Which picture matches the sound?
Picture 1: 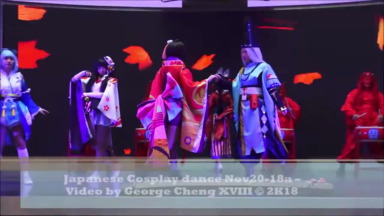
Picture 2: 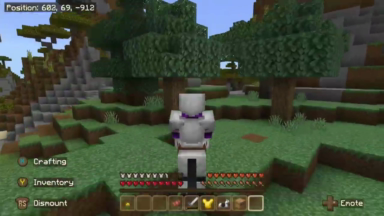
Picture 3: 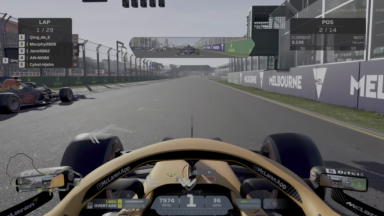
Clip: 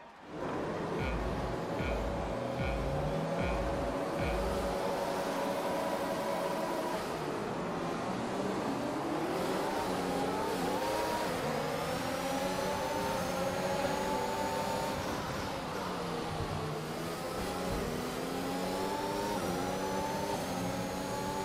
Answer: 3